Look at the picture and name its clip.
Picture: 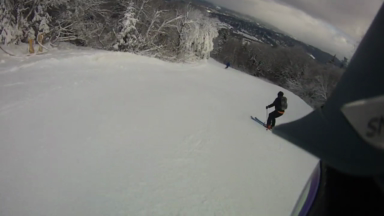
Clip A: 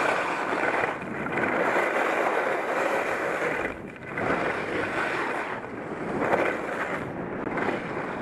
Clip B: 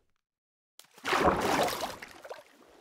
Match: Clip A